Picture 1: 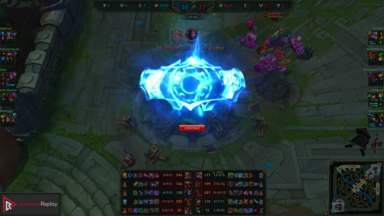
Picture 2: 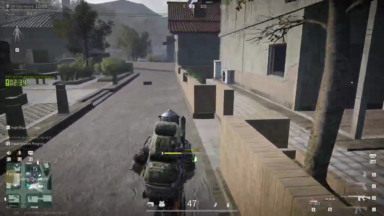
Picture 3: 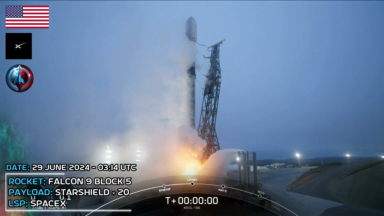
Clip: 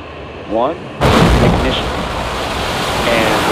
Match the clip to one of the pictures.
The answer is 3